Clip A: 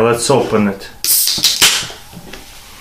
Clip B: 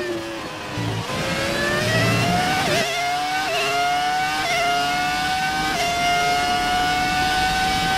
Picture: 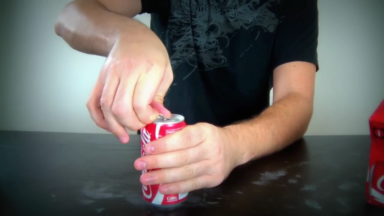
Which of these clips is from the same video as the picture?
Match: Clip A